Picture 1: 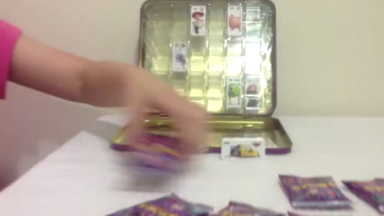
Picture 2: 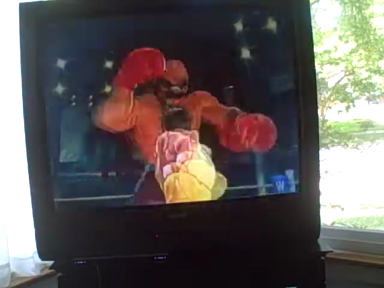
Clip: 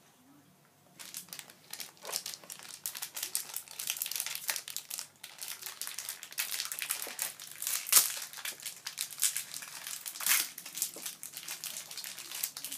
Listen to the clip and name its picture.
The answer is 1